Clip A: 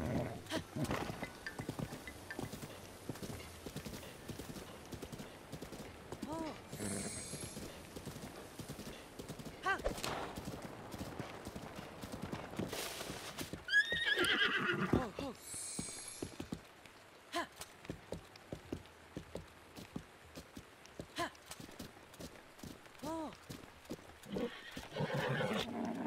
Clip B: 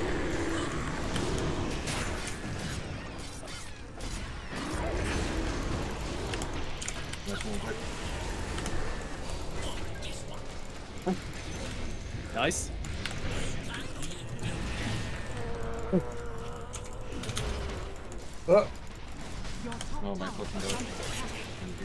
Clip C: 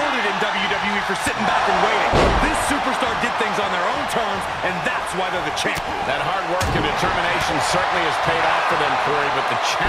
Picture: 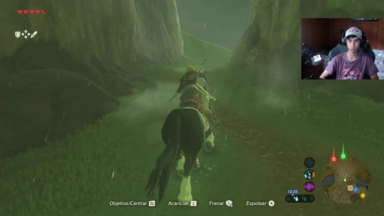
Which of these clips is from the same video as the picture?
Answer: A